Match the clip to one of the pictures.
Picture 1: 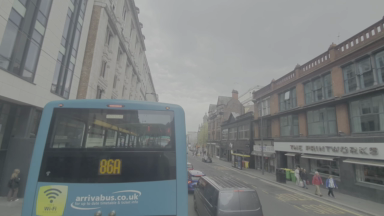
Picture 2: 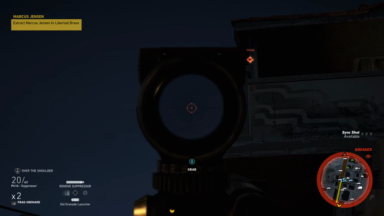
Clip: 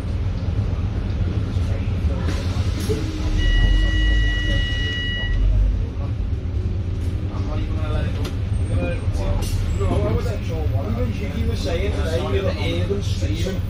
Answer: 1